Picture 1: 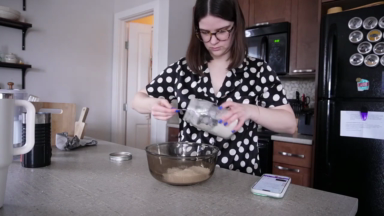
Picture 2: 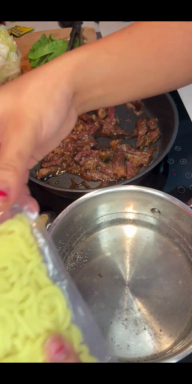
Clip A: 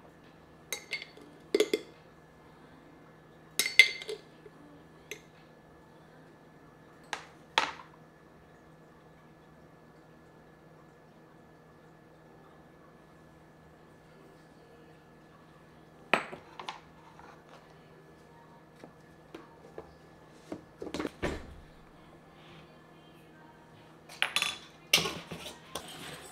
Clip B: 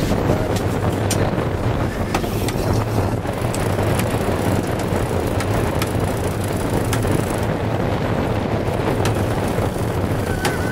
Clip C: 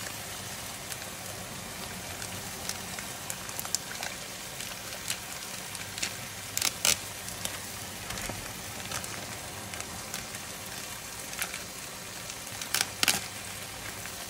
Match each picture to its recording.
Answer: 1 A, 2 C